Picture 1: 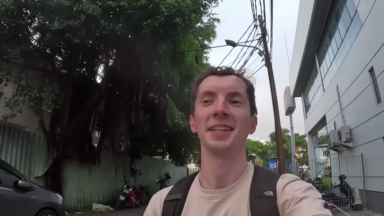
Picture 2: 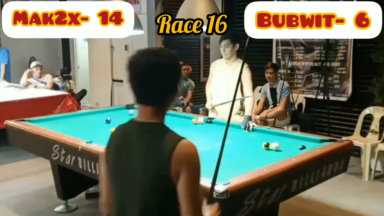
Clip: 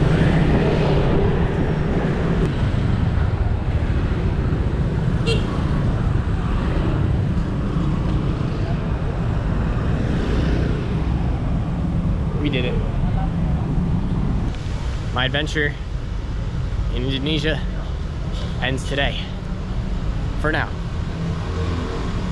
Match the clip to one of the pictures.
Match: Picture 1